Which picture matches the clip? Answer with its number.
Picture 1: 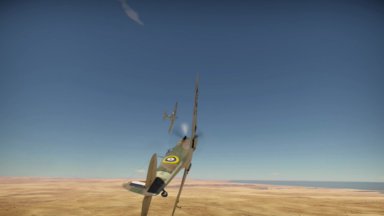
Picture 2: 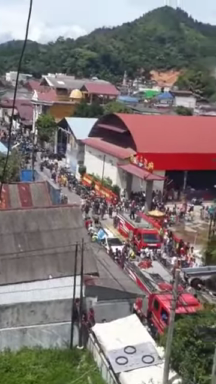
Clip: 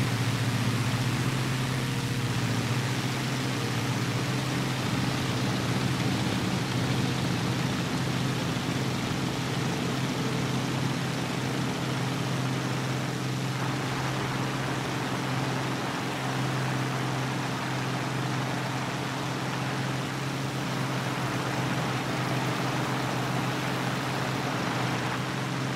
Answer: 1